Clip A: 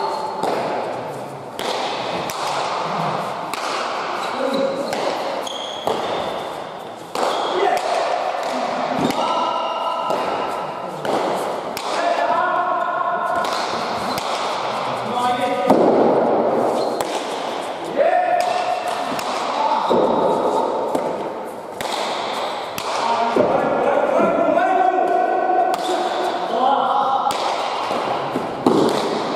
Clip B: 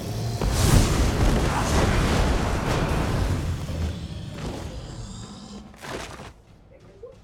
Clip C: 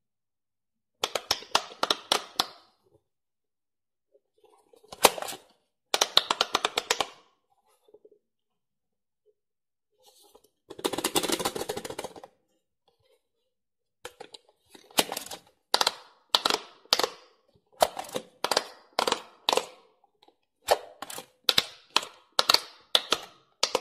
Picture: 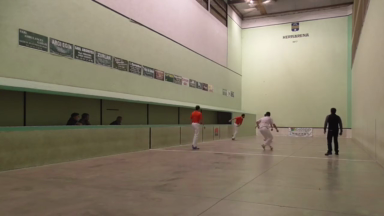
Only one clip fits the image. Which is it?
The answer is A